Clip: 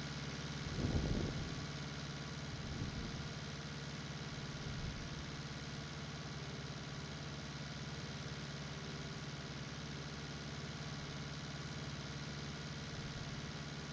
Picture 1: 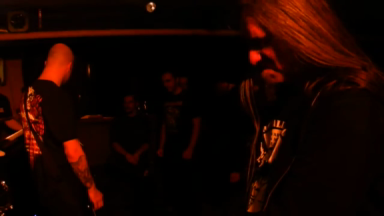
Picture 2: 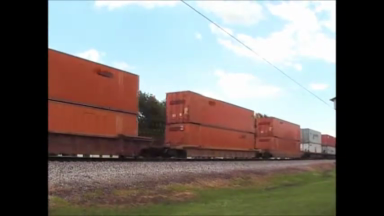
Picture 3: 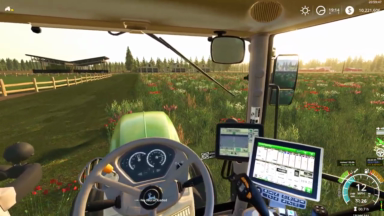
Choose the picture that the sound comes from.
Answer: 3